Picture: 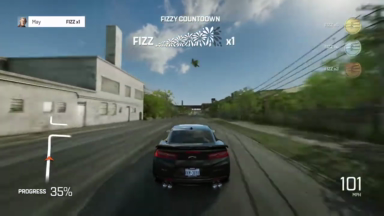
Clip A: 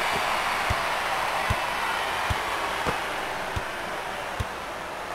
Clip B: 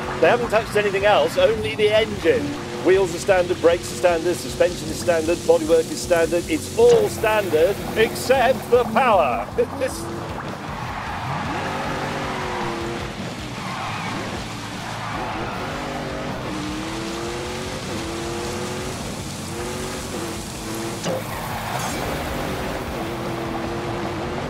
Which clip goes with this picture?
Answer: B